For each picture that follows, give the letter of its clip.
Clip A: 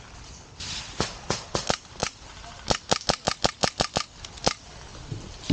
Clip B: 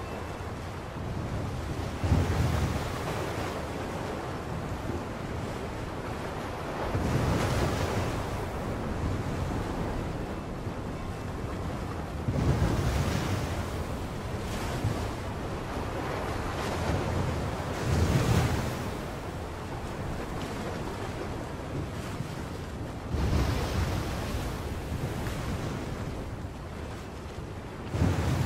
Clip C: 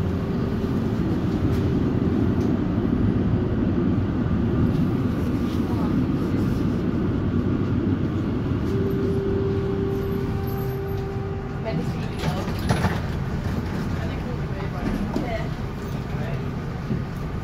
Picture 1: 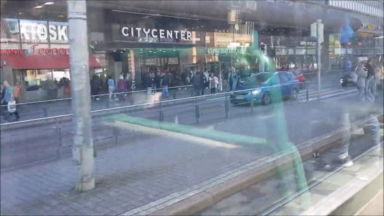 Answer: C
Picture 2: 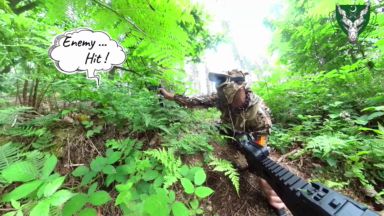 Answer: A